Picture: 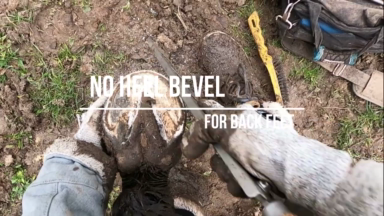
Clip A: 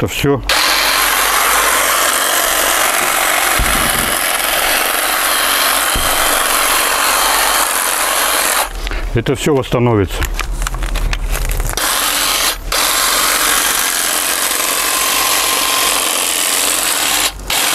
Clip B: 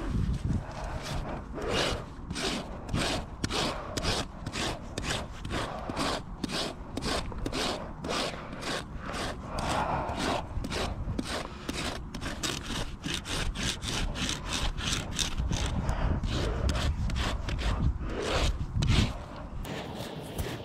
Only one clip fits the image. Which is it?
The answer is B